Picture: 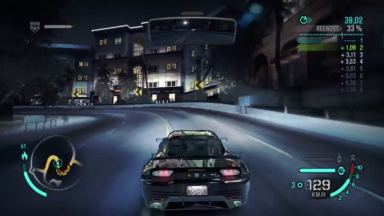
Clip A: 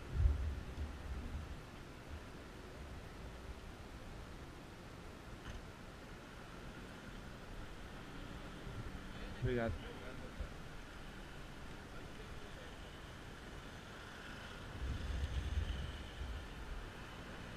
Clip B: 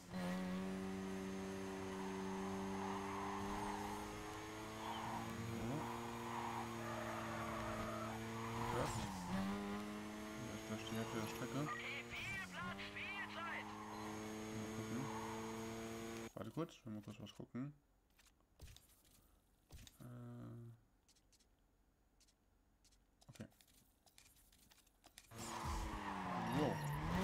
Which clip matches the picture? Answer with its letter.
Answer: B